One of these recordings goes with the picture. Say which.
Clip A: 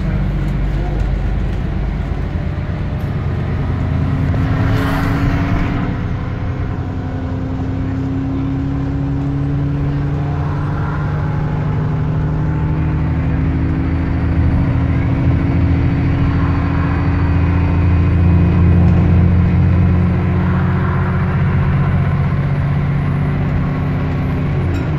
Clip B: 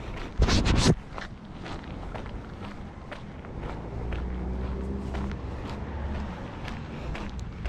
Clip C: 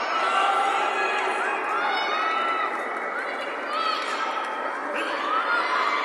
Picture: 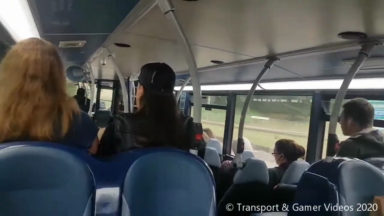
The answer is A